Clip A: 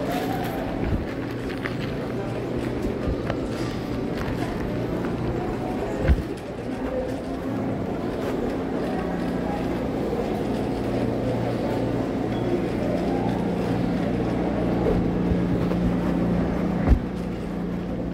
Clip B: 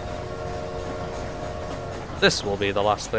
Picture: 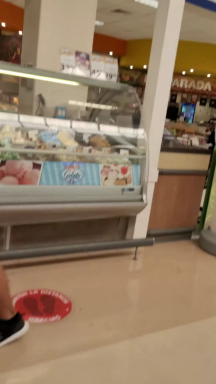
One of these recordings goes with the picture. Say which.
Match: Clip A